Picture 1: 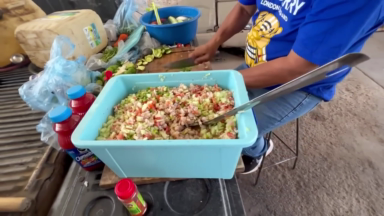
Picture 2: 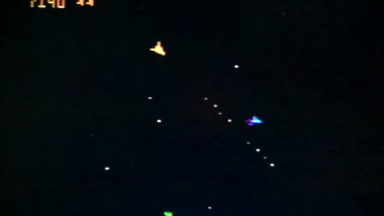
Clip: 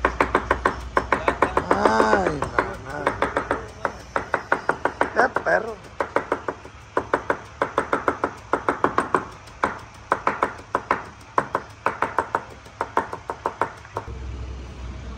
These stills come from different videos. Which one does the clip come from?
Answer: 1